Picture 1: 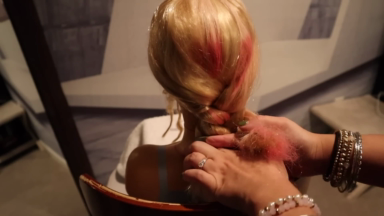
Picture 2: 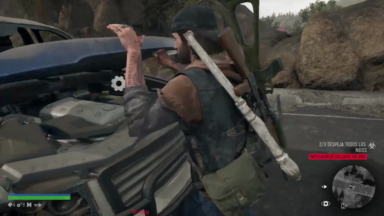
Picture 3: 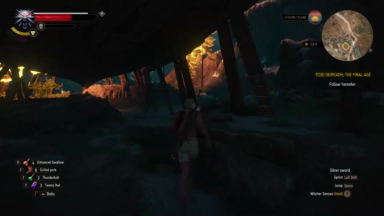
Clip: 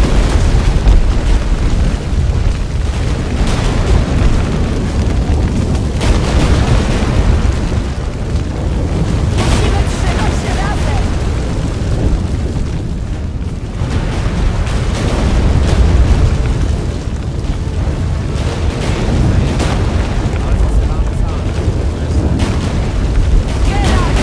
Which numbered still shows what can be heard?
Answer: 3